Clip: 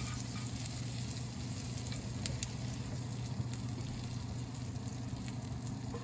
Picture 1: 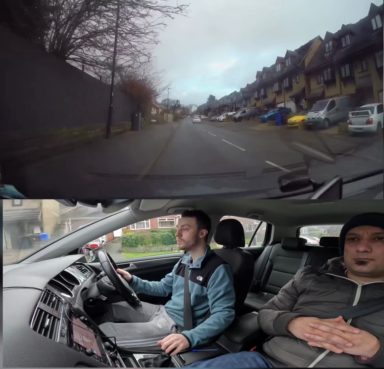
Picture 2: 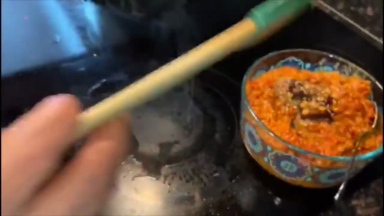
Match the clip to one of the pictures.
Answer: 2